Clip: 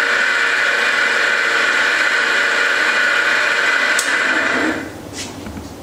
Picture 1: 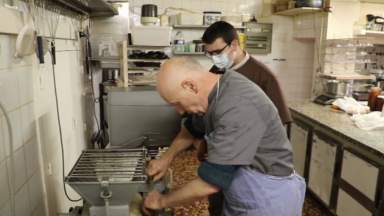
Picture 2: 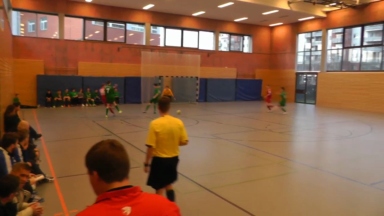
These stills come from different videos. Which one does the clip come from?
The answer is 1